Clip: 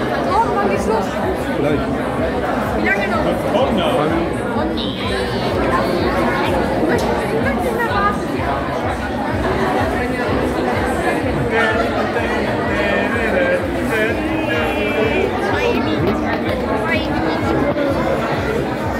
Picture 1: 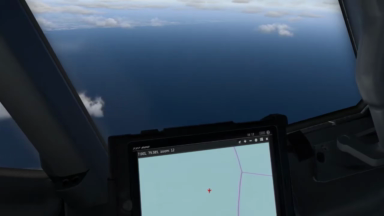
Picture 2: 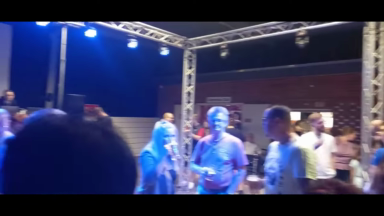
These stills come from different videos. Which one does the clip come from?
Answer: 2